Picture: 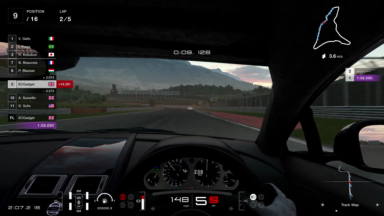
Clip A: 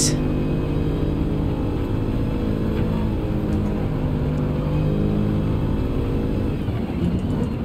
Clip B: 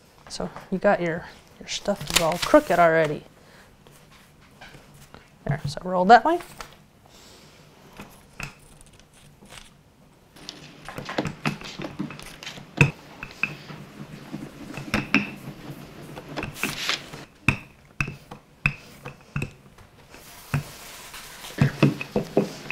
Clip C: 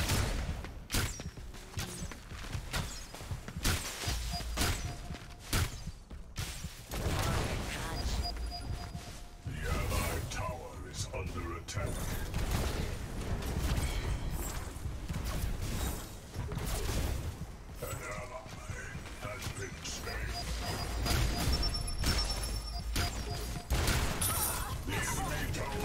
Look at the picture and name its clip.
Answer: A